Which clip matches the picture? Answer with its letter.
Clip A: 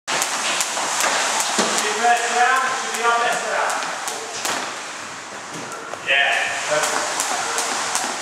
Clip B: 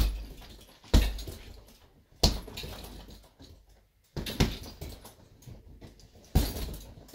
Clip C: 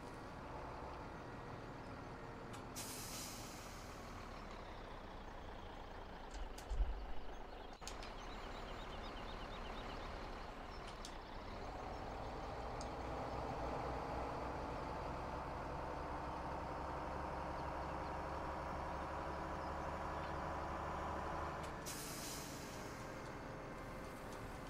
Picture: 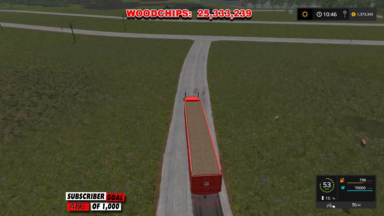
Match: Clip C